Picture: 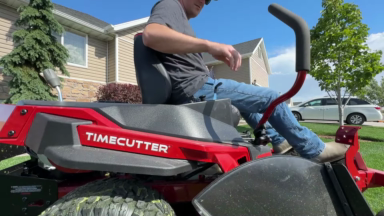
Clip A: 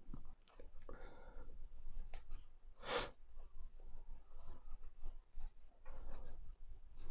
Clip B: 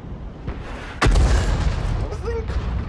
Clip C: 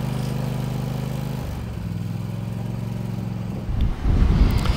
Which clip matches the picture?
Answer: C